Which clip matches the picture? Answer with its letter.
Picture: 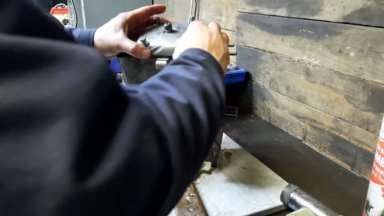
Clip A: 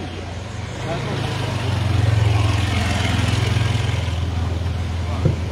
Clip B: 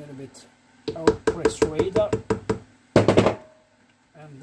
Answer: B